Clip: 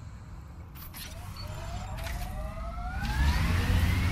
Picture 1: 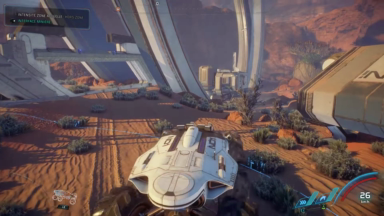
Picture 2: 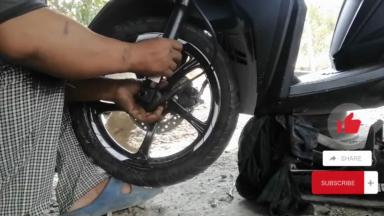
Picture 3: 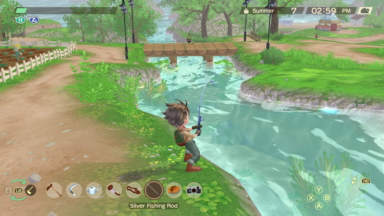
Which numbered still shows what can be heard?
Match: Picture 1